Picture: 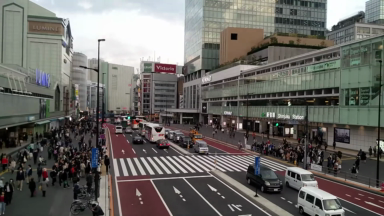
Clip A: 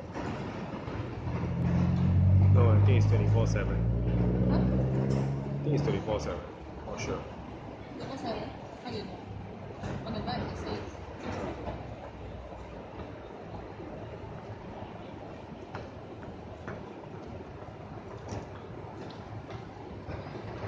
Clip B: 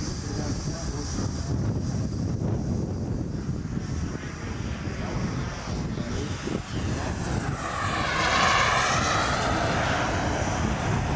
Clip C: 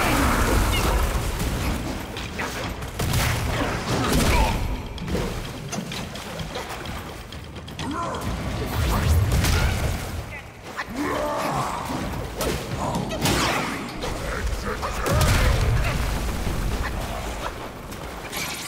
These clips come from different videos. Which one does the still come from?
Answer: A